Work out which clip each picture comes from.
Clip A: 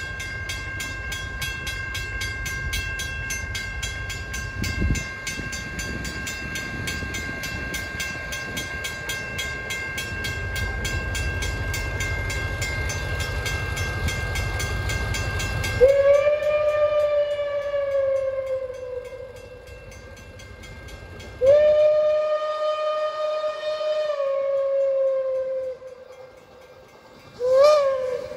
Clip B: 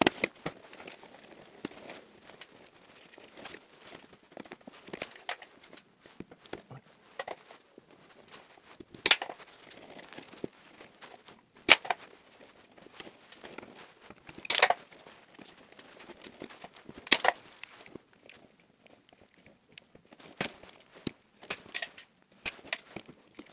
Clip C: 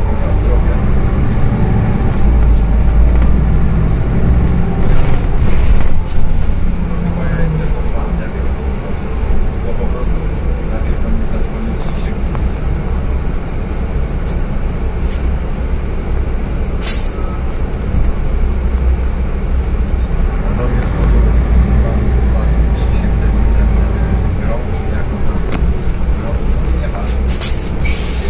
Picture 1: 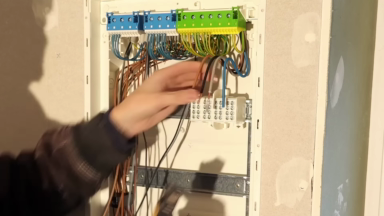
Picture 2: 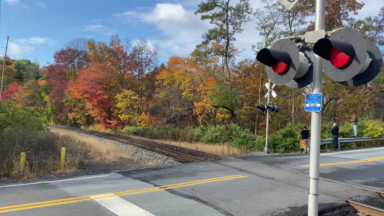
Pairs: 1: B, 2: A